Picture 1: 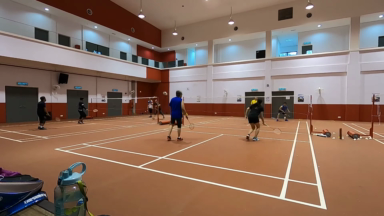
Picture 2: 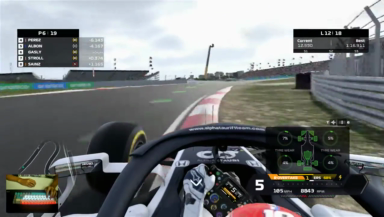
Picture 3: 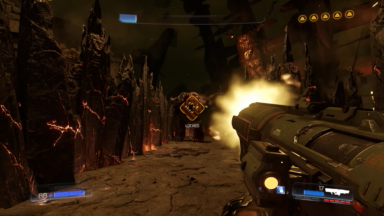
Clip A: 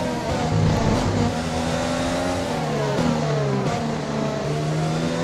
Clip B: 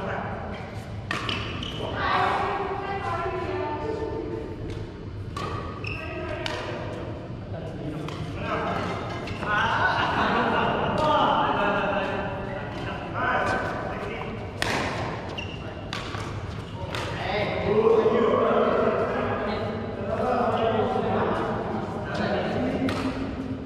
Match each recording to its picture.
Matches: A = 2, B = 1